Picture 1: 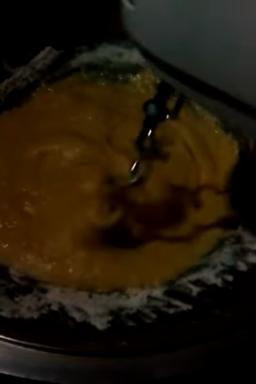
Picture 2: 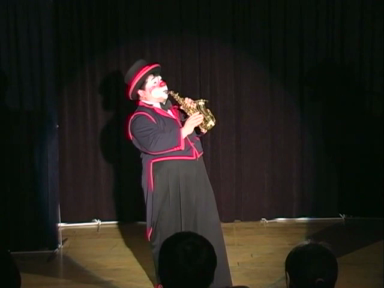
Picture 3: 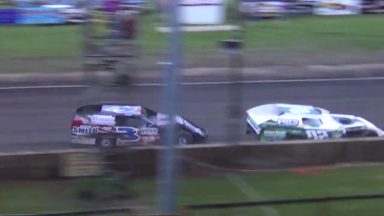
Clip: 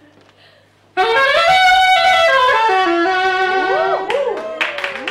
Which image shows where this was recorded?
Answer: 2